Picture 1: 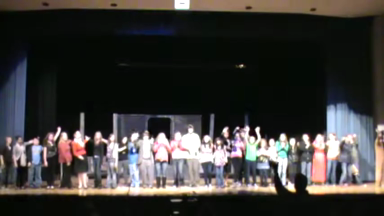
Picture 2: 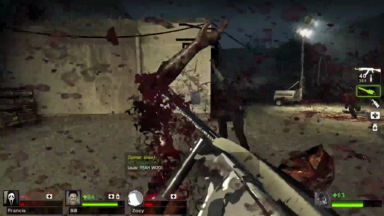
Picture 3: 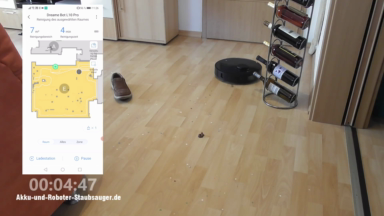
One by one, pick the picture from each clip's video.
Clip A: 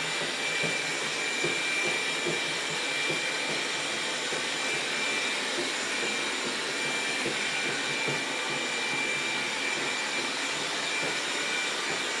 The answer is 3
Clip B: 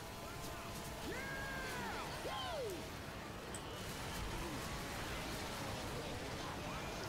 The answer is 2